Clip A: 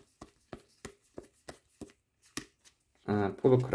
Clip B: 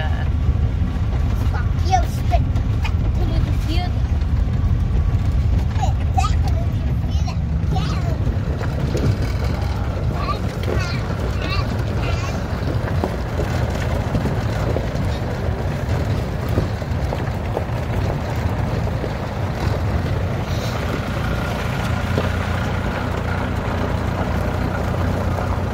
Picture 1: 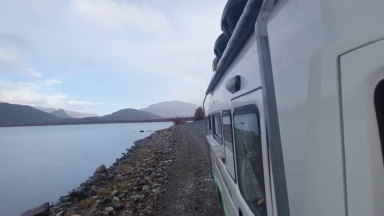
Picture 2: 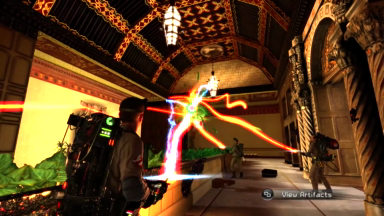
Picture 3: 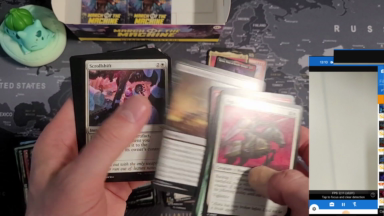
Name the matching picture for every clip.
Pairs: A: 3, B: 1